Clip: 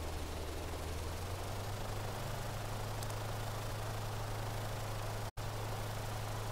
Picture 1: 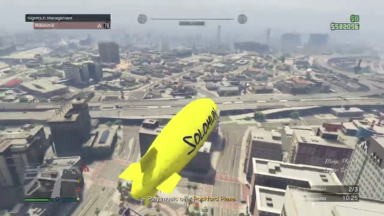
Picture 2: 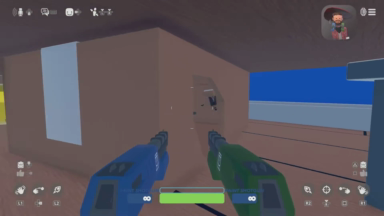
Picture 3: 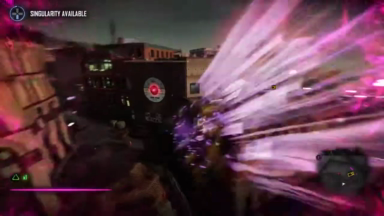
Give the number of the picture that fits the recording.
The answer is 1